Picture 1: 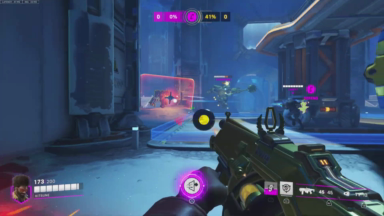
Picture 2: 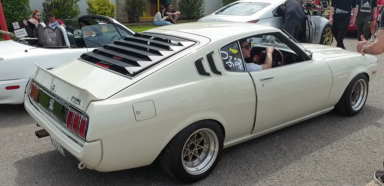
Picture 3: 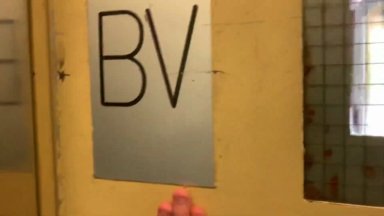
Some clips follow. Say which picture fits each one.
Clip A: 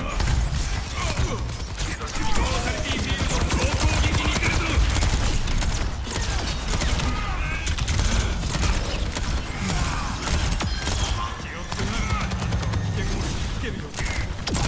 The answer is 1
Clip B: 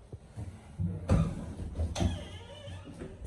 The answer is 3